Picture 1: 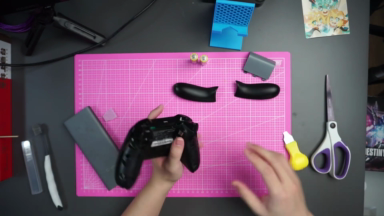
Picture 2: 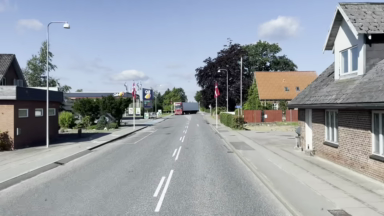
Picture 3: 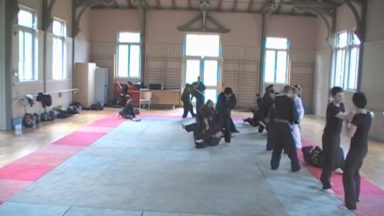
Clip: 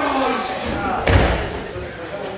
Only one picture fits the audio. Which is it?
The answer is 3